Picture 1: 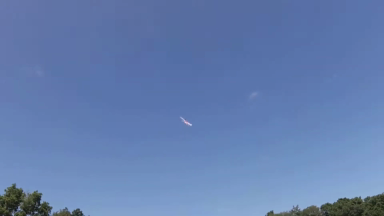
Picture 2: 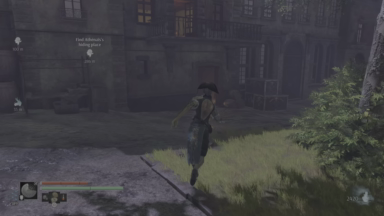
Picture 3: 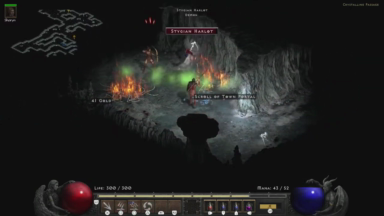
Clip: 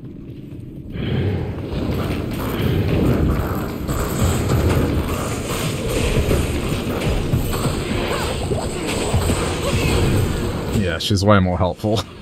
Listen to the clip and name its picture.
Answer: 3